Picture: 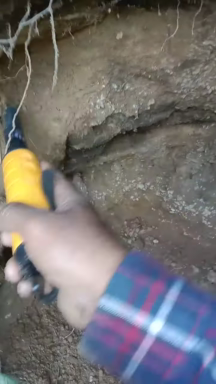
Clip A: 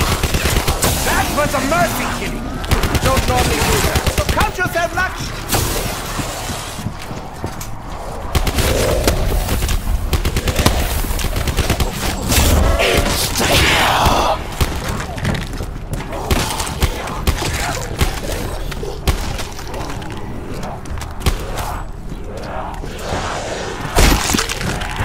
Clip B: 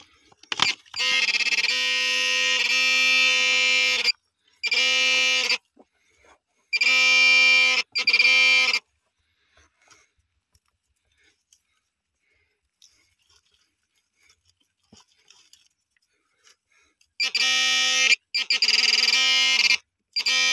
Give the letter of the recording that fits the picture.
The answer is B